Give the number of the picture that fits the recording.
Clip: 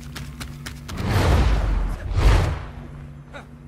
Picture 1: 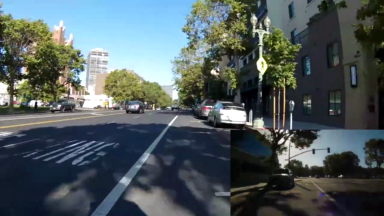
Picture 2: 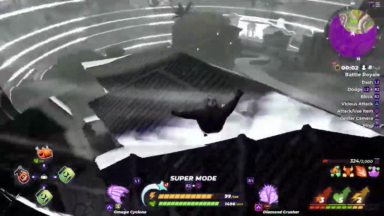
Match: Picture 2